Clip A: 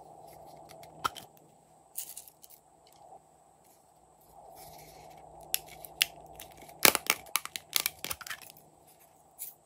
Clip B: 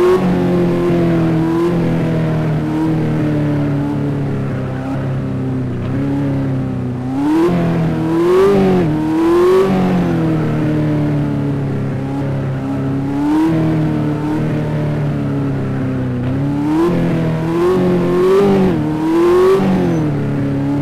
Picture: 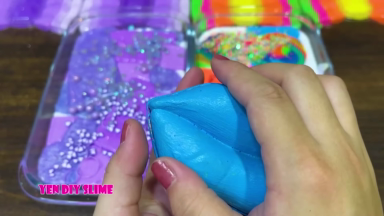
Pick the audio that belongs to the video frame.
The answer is A